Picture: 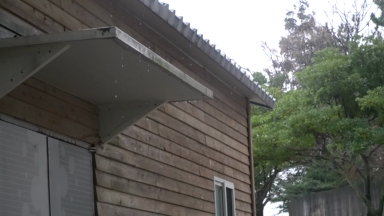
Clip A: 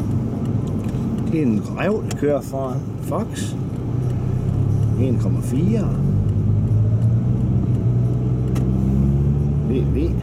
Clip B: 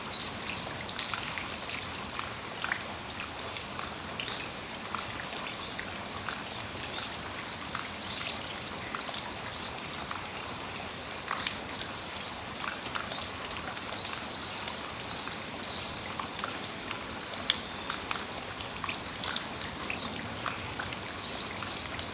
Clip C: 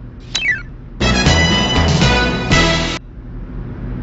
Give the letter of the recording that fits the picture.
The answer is B